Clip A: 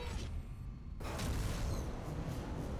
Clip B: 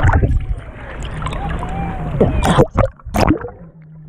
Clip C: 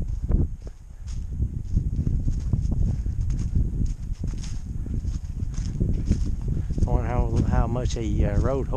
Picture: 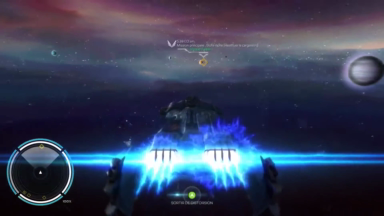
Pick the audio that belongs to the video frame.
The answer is A